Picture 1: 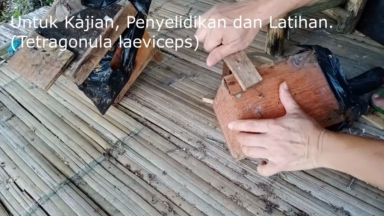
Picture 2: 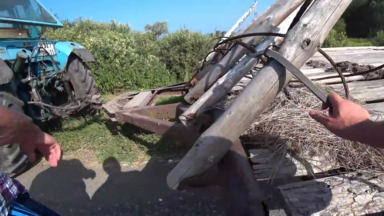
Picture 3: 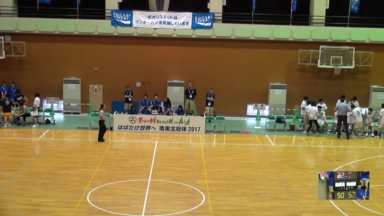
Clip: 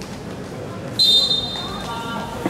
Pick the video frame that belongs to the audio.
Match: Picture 3